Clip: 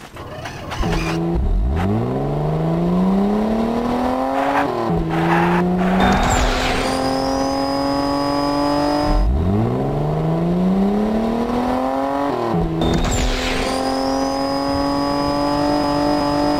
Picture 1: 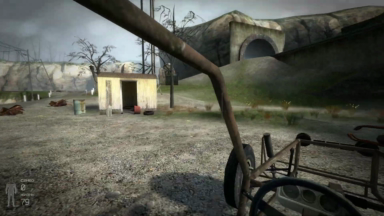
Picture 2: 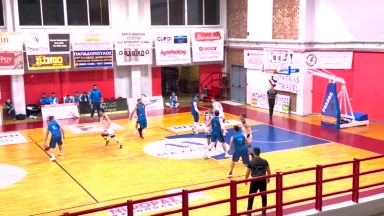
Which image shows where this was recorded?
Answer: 1